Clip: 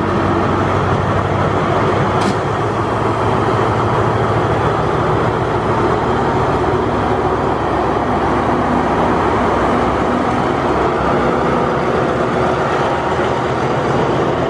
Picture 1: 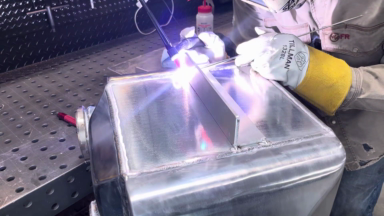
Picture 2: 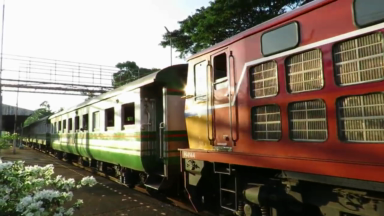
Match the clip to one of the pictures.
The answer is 2